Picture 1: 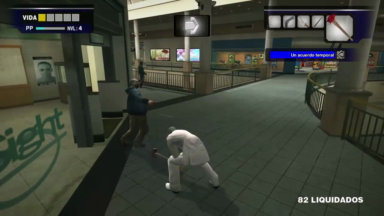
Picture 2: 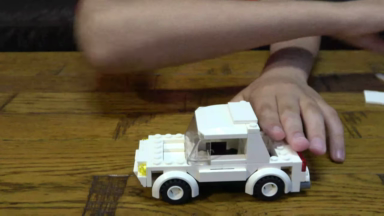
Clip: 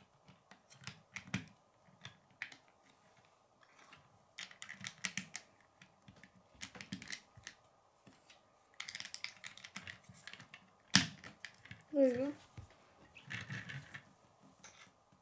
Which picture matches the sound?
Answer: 2